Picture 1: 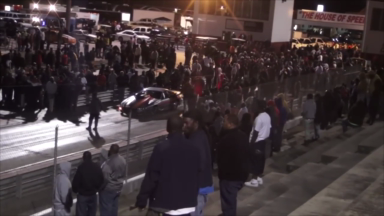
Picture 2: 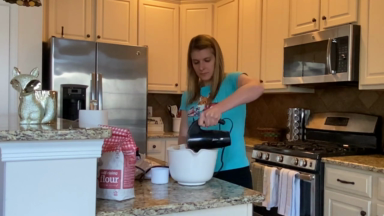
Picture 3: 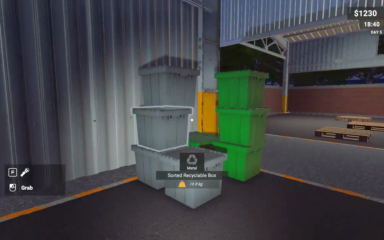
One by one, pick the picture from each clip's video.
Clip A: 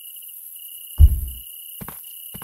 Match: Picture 3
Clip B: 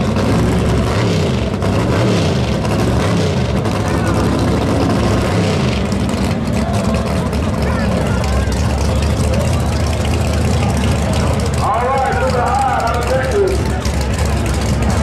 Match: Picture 1